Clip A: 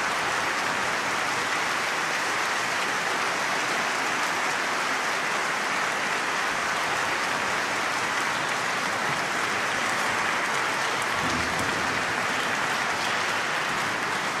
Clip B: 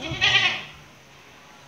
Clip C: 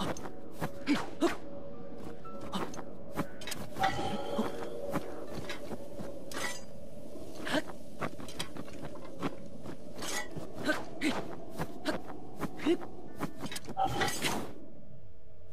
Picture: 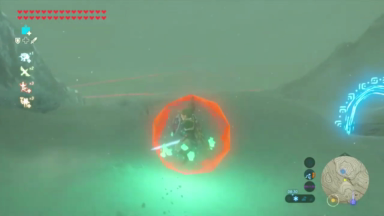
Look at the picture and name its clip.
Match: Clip C